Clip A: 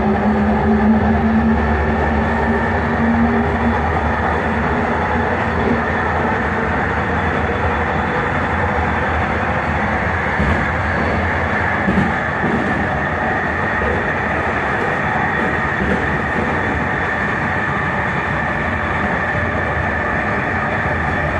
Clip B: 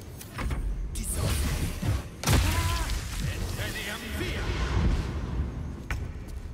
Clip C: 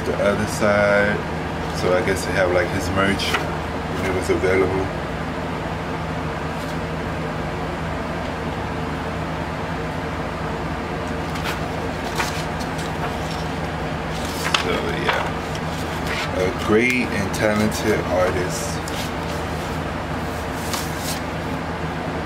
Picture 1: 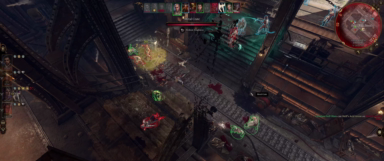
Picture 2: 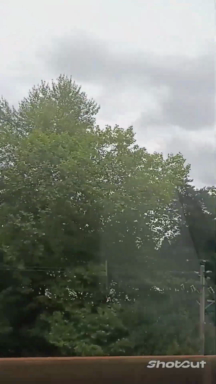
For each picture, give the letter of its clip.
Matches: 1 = B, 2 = A